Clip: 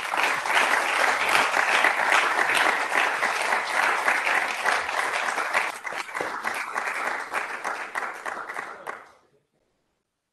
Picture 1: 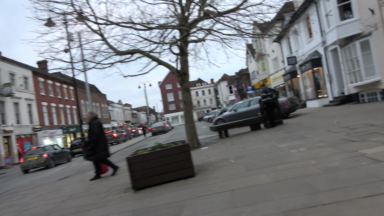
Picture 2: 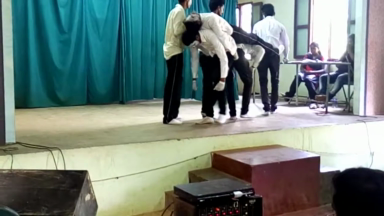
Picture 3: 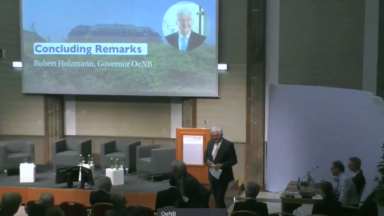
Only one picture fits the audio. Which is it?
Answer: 3